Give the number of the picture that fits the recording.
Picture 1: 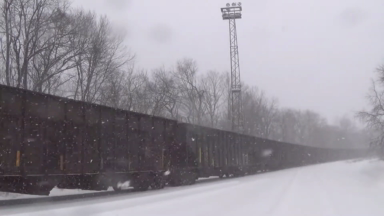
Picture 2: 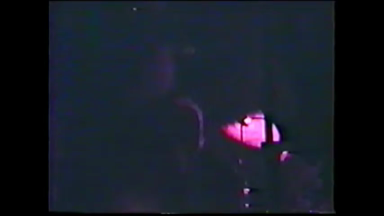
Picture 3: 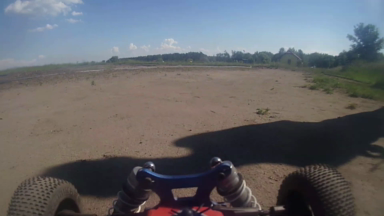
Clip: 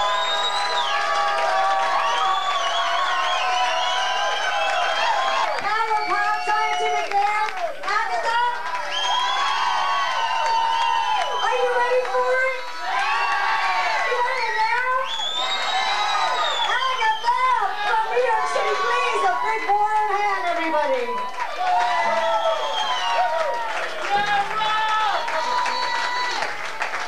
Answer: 2